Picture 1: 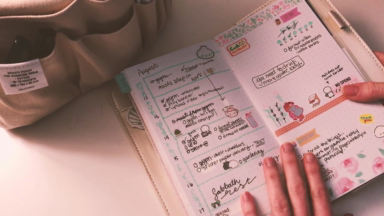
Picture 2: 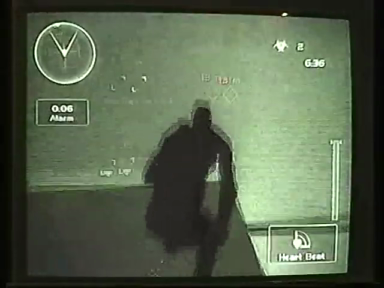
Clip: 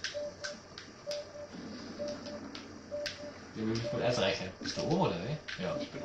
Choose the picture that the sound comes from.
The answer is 2